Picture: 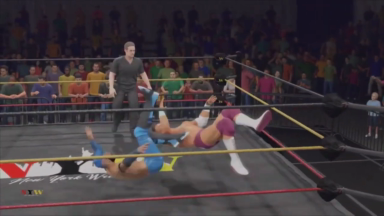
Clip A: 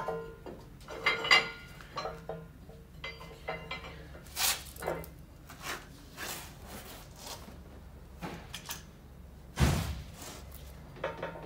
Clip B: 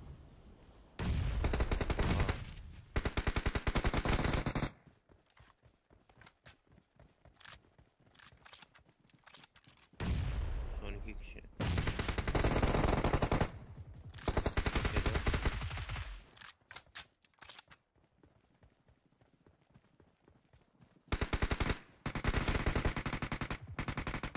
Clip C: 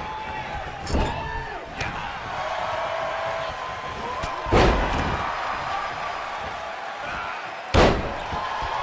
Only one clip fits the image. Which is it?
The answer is C